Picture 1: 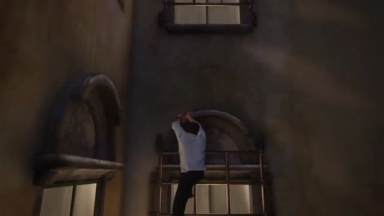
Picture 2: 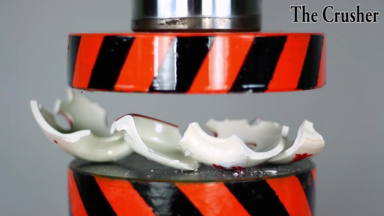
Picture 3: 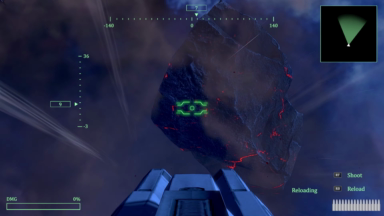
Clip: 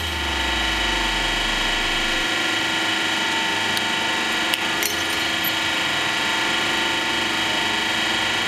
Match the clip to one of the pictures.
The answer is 2